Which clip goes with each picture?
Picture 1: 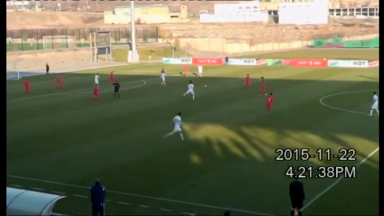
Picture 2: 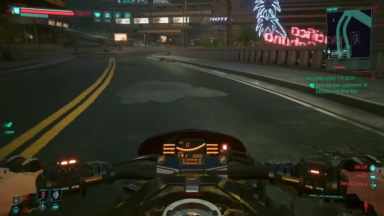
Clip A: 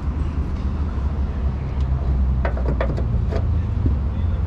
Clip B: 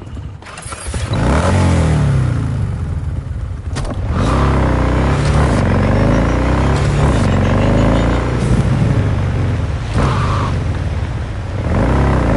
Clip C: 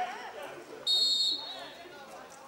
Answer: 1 C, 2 B